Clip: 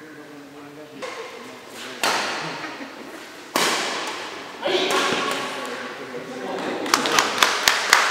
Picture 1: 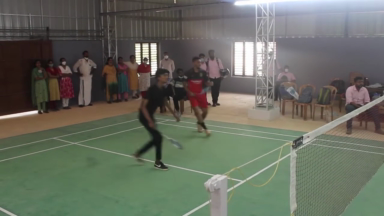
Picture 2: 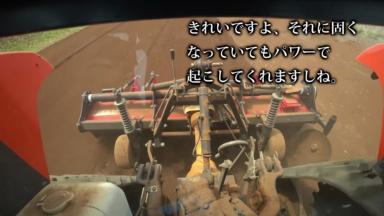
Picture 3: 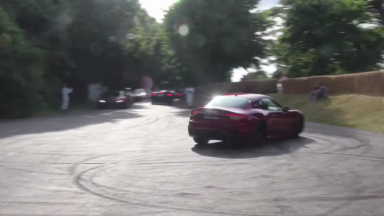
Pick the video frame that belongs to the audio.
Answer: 1